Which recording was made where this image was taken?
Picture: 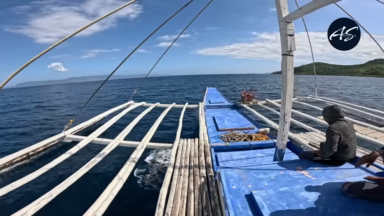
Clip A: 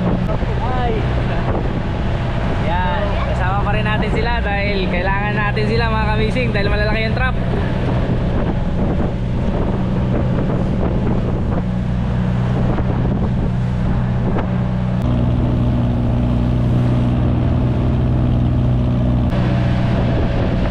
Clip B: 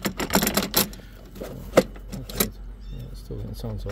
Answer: A